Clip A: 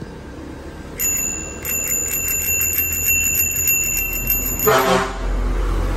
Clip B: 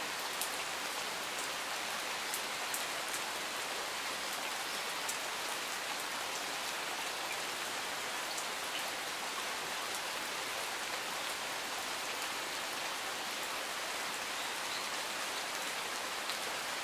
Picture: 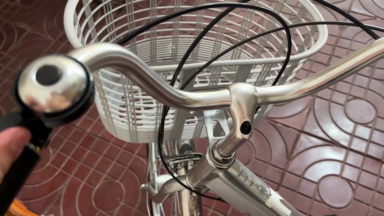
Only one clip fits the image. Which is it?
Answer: A